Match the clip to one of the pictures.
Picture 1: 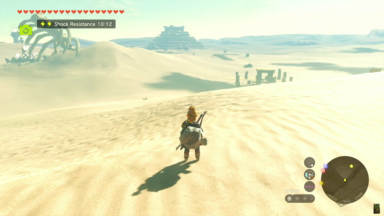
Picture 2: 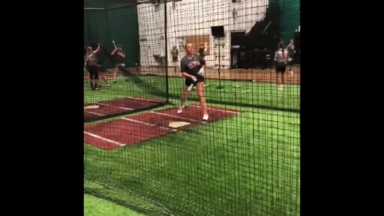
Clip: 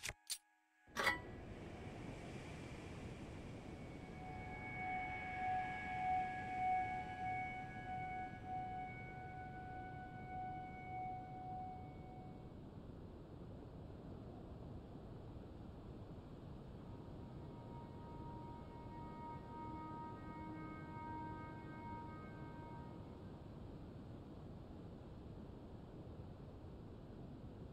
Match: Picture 1